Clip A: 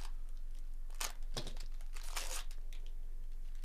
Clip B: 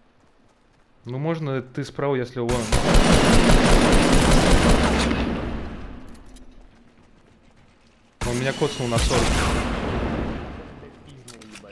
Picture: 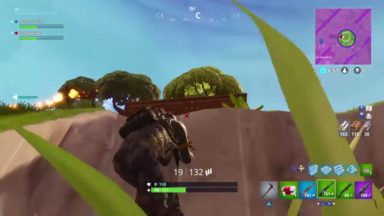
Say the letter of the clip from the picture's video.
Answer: B